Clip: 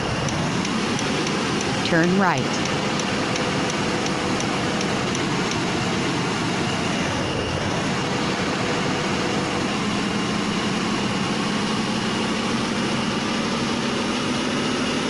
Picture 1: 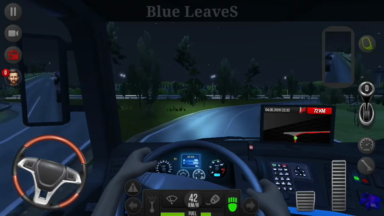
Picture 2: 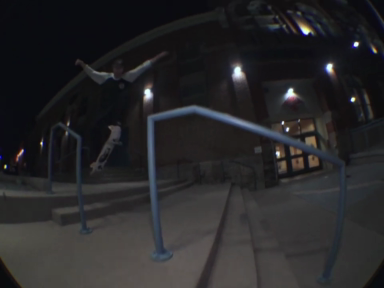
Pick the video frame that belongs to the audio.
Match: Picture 1